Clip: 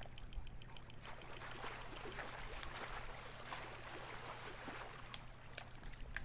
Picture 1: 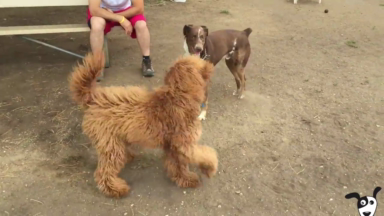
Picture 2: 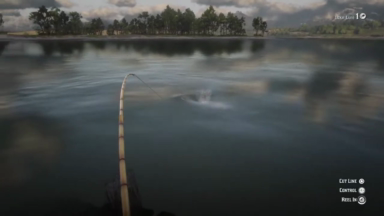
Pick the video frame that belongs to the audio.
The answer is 2